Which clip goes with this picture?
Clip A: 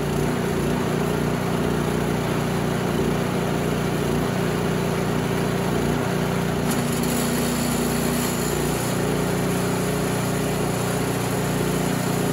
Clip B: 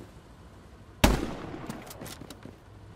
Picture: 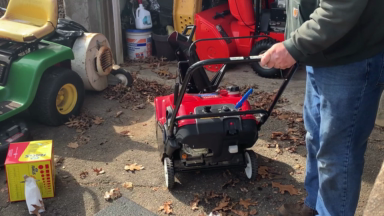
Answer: A